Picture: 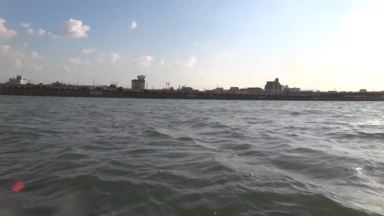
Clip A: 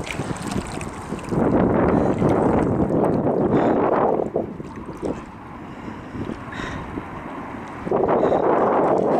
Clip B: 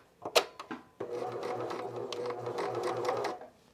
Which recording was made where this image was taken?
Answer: A